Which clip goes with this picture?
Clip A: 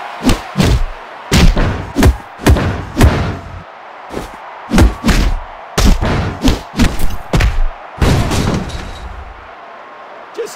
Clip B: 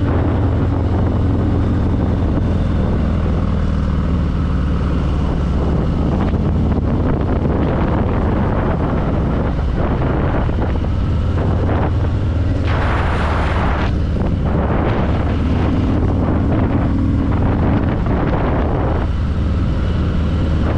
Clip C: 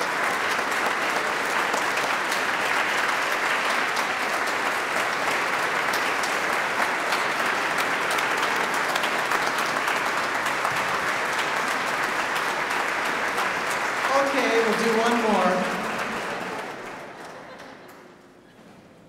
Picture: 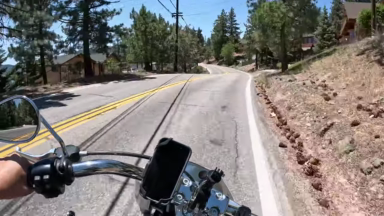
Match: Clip B